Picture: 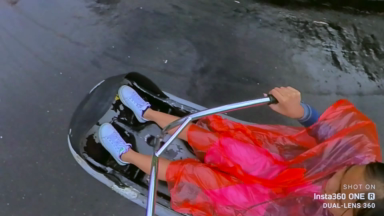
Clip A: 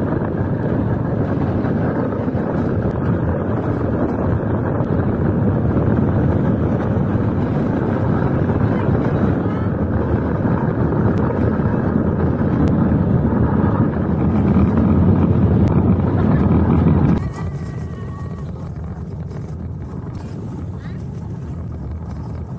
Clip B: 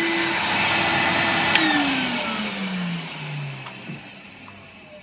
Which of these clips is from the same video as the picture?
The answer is A